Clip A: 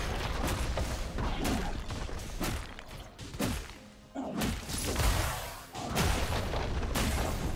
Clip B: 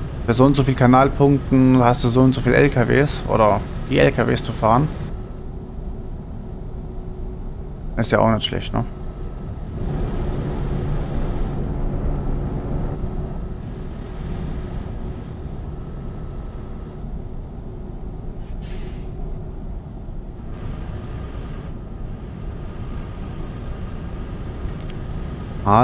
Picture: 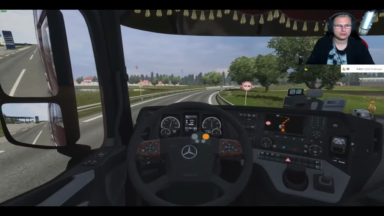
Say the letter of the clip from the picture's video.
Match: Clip B